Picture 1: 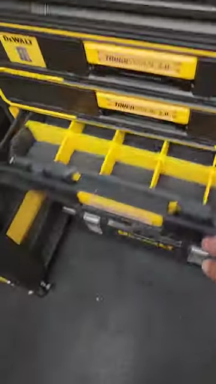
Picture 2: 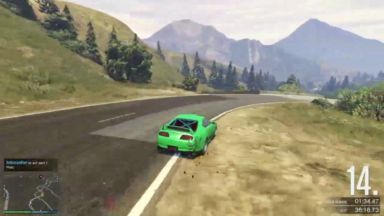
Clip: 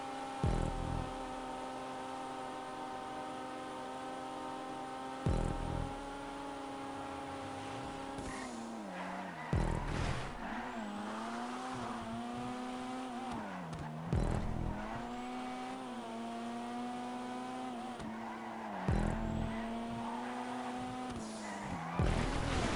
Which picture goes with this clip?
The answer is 2